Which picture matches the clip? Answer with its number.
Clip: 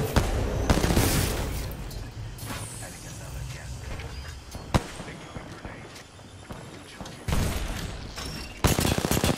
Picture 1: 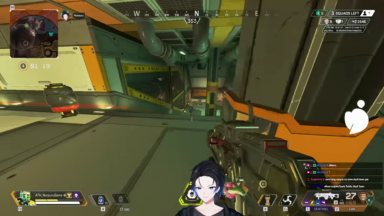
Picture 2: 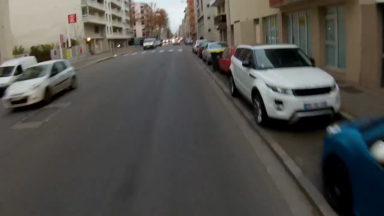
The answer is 1